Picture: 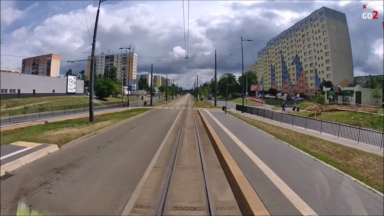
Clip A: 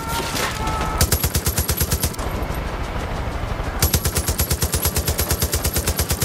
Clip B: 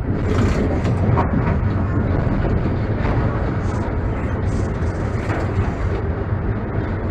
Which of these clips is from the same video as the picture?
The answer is B